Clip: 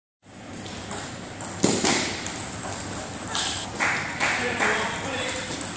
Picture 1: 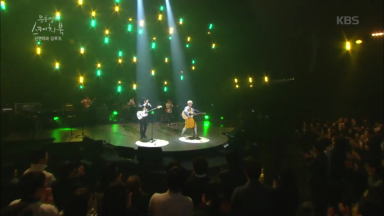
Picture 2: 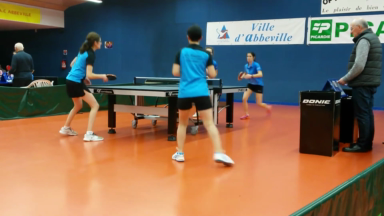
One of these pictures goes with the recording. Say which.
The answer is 2